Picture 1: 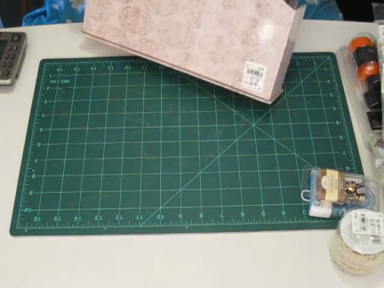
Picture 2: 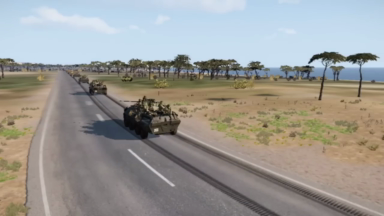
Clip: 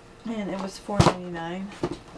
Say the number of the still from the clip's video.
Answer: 1